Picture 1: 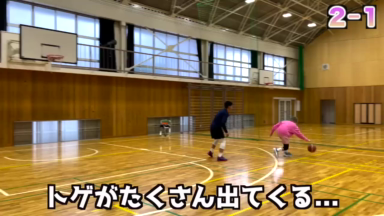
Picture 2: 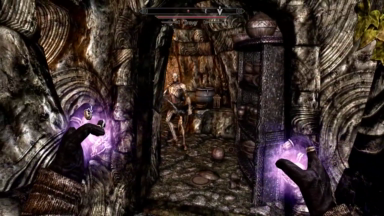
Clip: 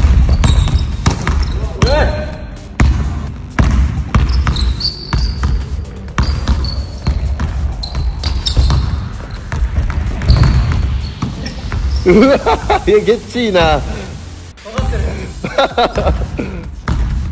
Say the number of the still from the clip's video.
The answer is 1